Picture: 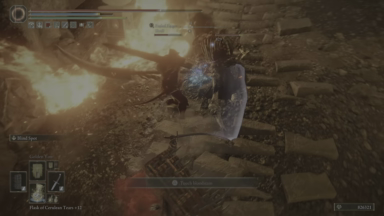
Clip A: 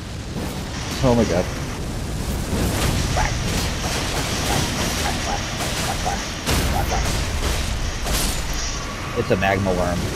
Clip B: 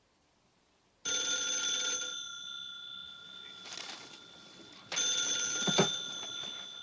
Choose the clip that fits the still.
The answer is A